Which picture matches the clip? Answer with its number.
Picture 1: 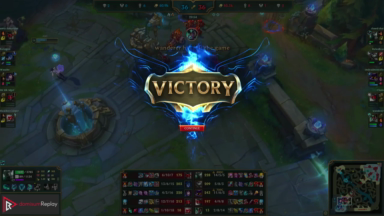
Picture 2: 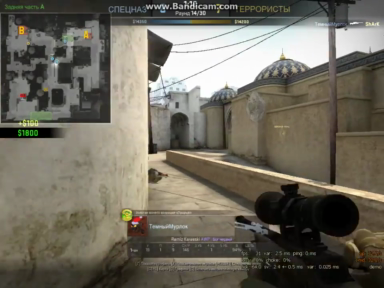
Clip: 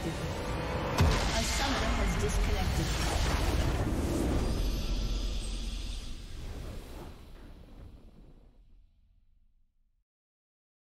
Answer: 1